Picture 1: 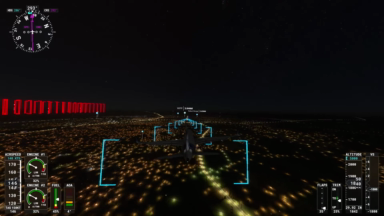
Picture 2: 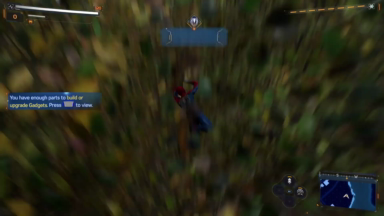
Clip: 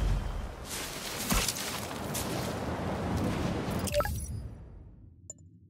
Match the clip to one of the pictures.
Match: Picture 2